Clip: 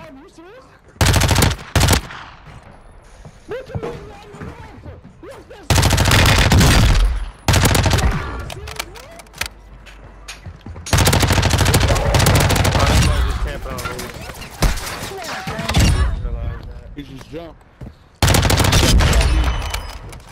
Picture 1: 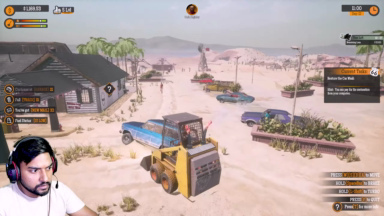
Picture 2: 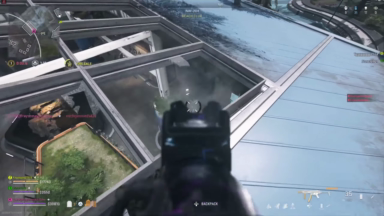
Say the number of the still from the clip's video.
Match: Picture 2